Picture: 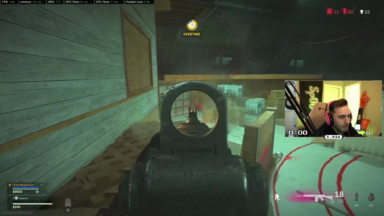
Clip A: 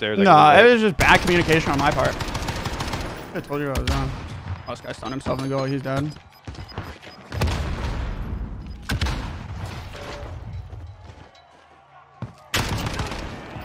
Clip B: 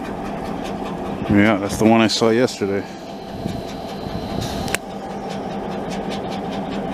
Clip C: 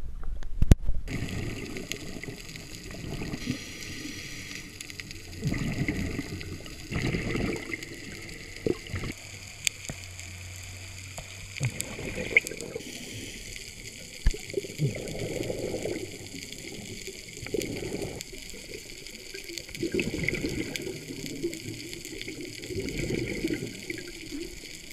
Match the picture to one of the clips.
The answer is A